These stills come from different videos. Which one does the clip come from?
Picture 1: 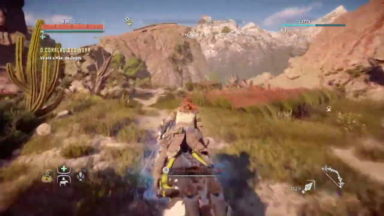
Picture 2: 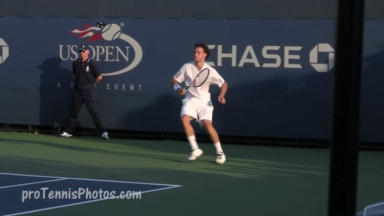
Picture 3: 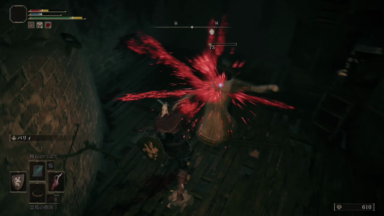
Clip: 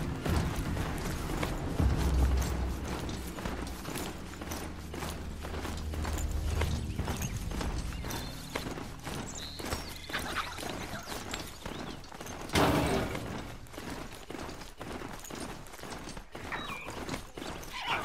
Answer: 1